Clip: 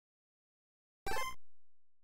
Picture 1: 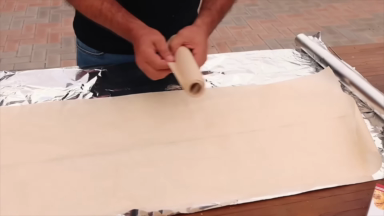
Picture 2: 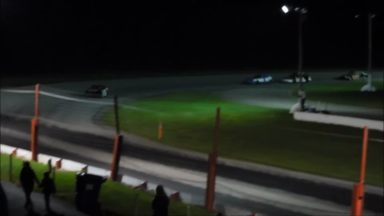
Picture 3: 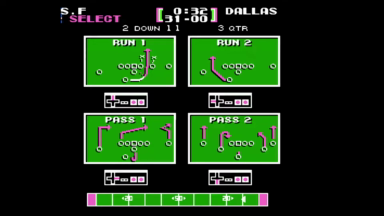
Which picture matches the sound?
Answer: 3